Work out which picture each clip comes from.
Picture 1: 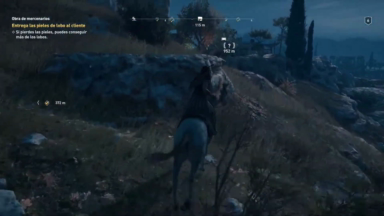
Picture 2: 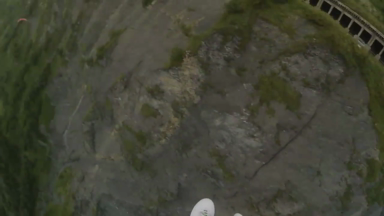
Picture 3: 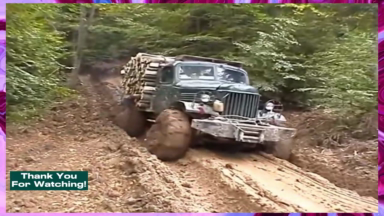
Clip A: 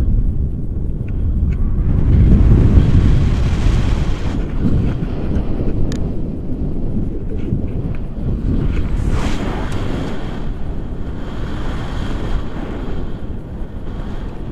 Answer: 2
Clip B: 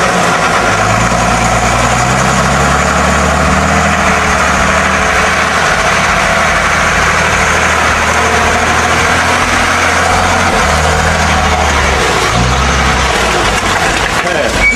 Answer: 3